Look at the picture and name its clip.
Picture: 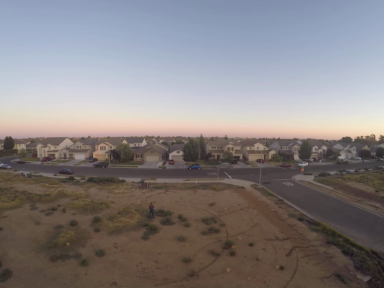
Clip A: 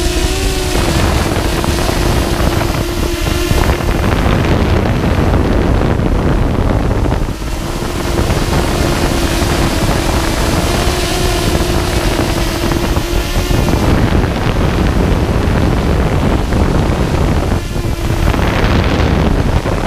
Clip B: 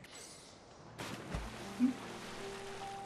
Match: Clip A